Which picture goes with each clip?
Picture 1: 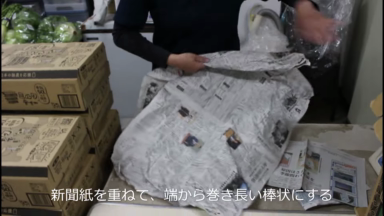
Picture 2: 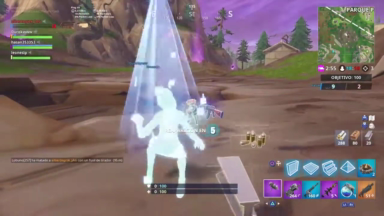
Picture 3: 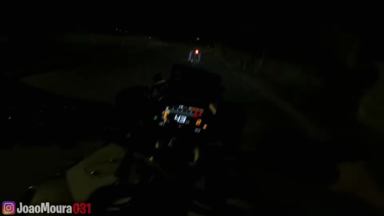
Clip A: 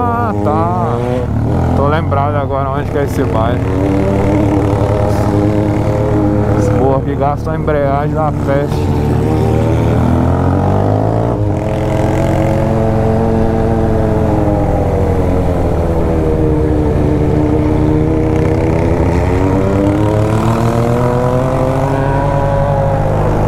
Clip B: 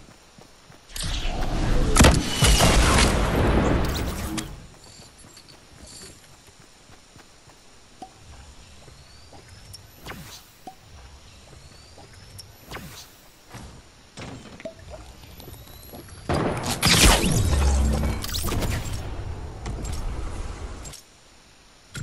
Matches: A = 3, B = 2